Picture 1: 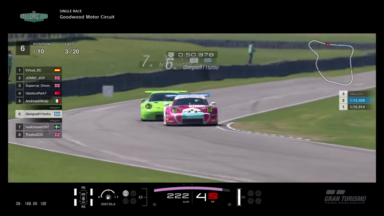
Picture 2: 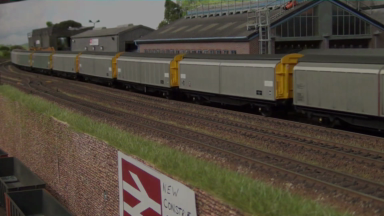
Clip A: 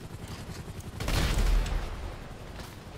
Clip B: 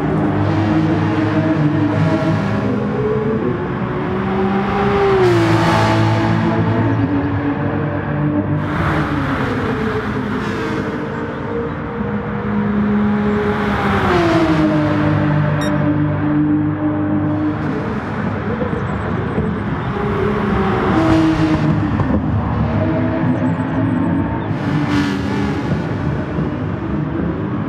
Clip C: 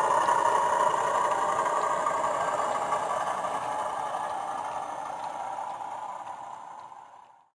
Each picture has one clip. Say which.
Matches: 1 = B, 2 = C